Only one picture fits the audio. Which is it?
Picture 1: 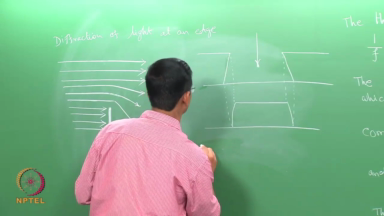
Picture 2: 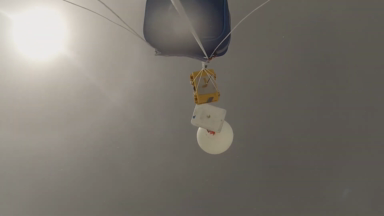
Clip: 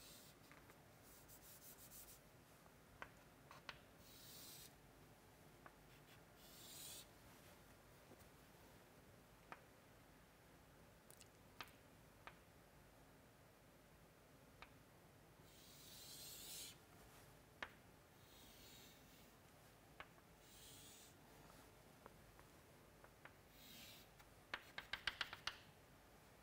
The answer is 1